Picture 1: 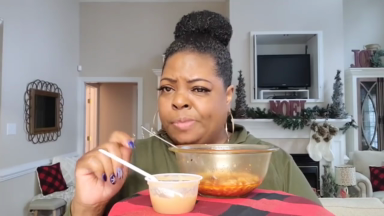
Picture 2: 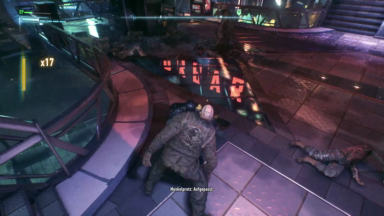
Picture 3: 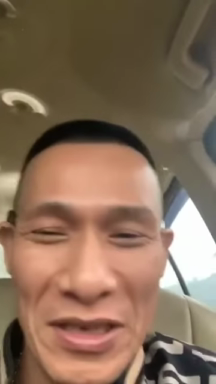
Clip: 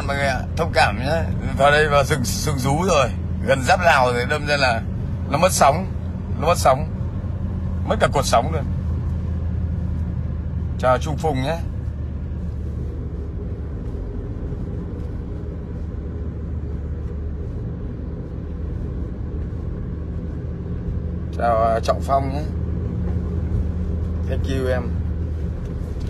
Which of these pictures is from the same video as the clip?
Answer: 3